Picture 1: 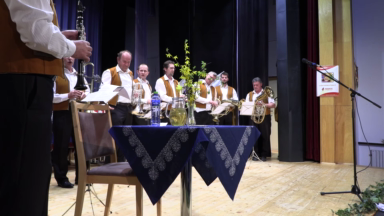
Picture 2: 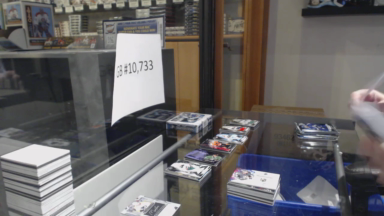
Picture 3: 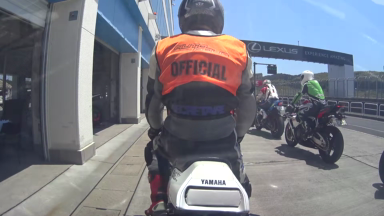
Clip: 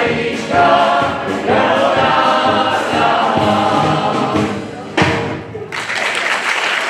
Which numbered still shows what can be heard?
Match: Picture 1